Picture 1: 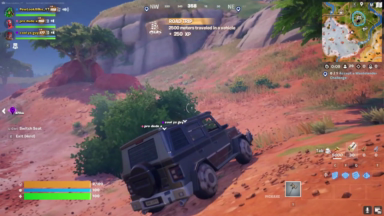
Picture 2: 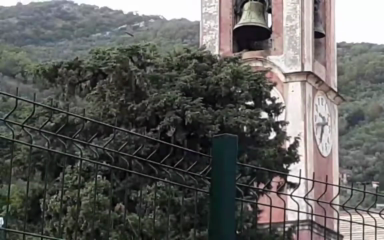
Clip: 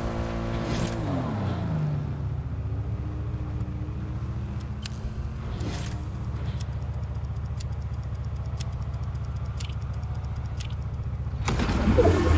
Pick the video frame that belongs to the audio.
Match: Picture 1